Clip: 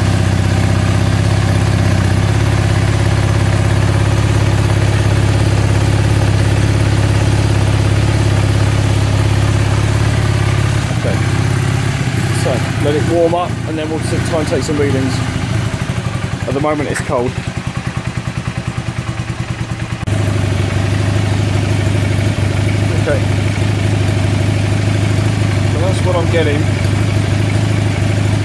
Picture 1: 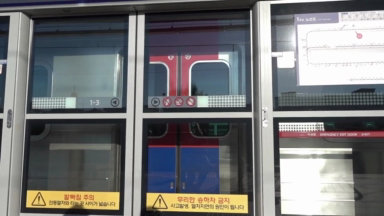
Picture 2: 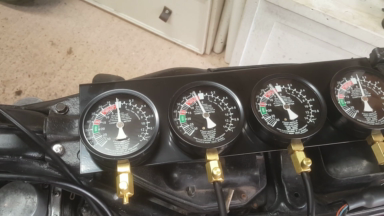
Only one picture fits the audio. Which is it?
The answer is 2